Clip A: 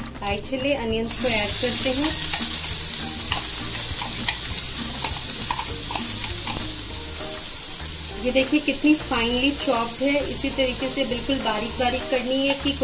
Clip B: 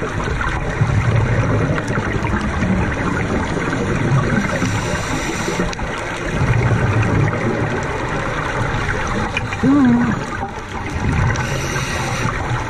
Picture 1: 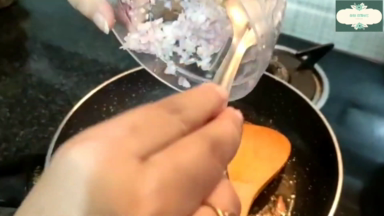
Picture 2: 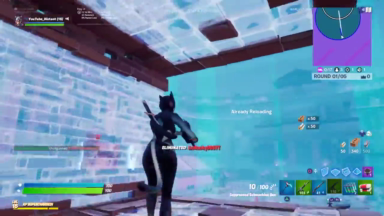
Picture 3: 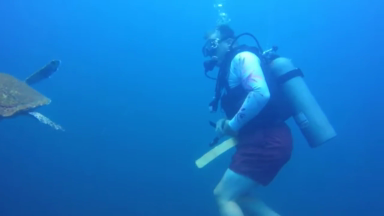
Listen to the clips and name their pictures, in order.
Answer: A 1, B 3